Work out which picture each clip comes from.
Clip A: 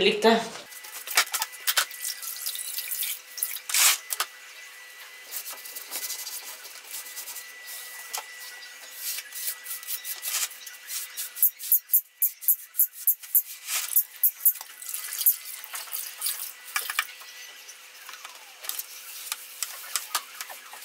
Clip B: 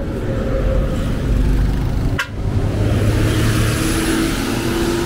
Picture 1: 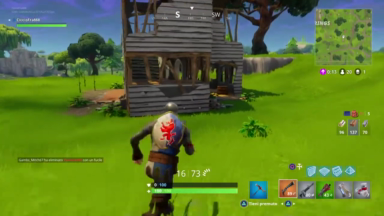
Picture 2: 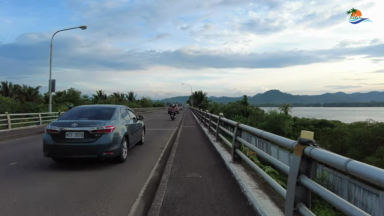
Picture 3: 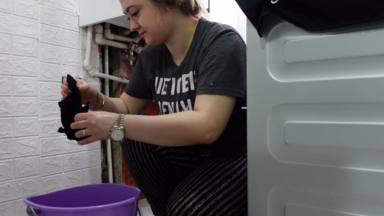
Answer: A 3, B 2